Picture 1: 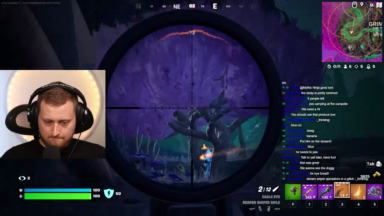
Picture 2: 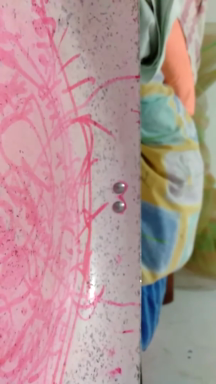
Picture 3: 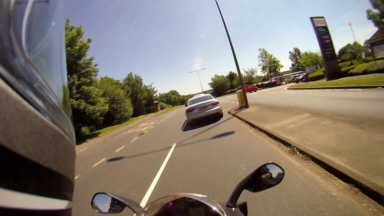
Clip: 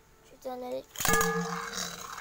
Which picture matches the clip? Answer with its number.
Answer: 2